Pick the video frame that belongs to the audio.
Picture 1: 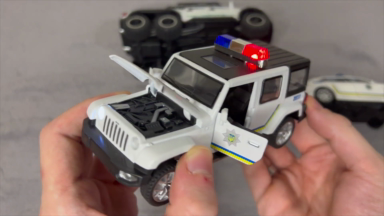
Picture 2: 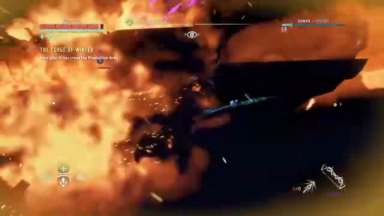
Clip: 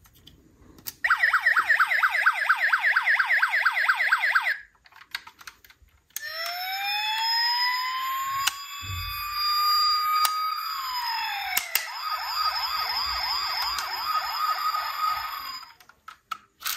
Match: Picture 1